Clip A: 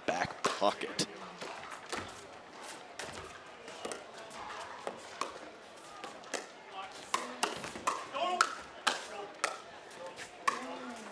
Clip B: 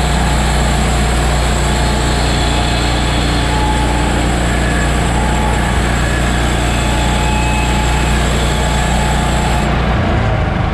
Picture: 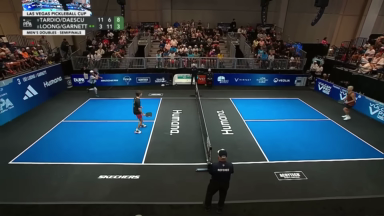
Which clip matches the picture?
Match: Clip A